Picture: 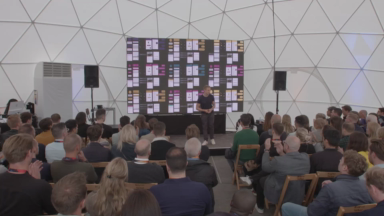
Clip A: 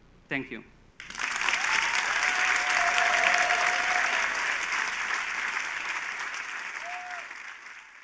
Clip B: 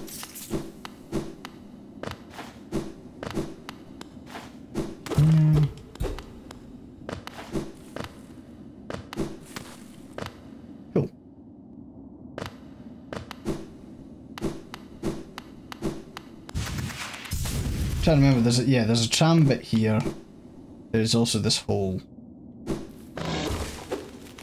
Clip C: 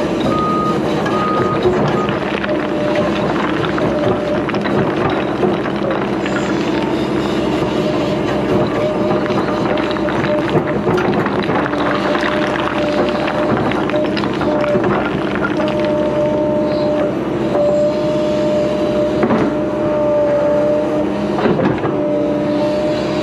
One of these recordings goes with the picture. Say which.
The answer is A